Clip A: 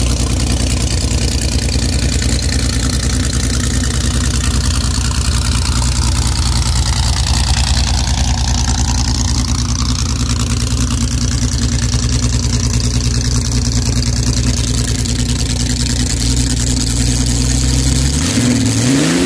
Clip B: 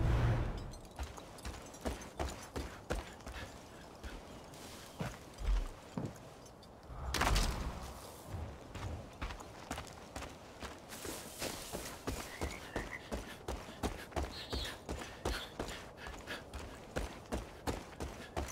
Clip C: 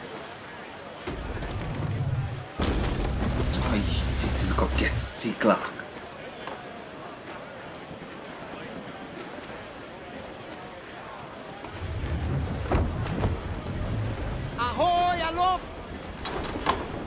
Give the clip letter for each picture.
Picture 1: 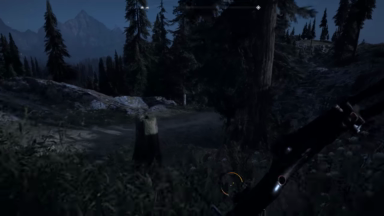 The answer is B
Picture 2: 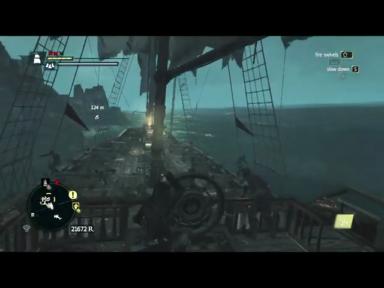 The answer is C